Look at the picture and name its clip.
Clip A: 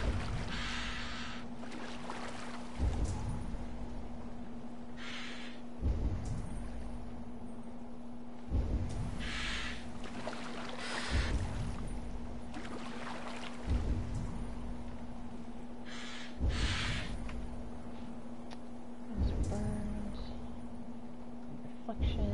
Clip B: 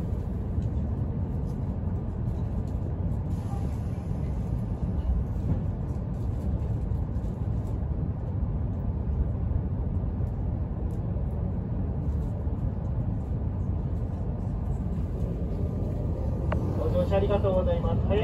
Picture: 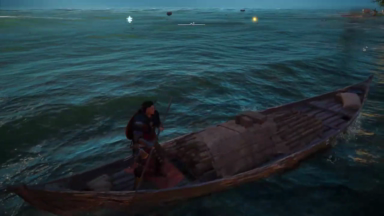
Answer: A